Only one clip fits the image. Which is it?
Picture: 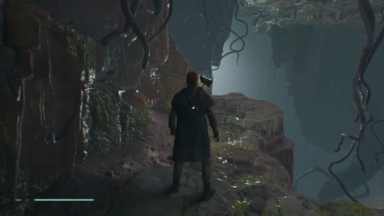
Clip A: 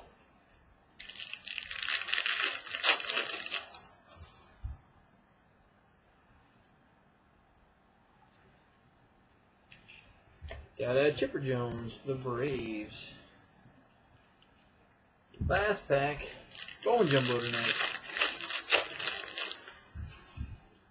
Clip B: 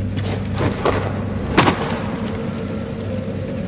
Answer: B